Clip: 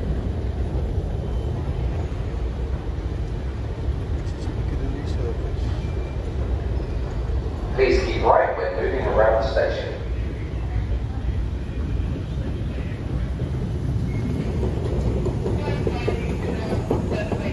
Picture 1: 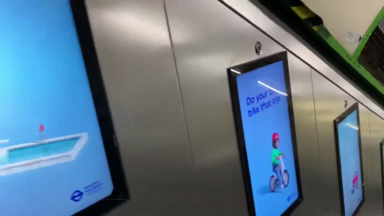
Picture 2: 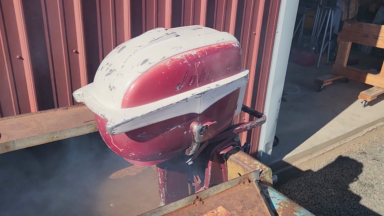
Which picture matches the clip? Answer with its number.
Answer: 1